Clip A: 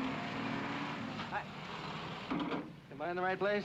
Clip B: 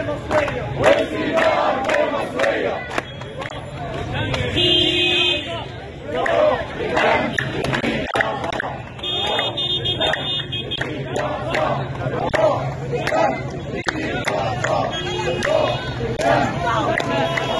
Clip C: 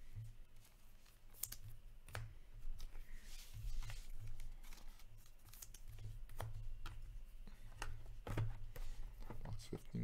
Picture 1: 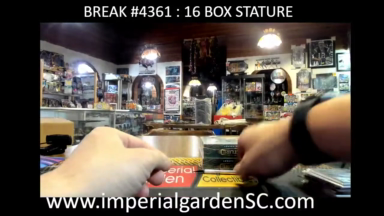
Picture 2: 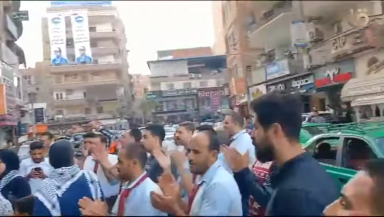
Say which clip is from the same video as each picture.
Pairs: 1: C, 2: B